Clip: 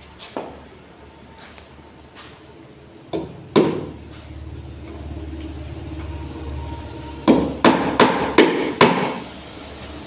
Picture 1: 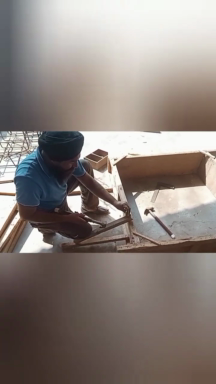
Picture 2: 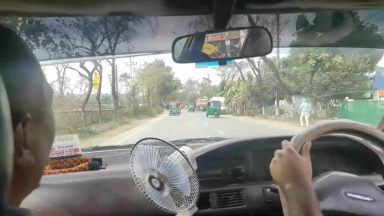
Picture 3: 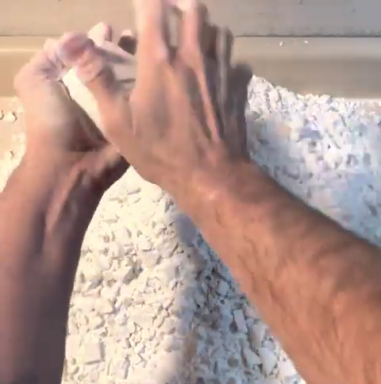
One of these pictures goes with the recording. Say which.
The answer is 1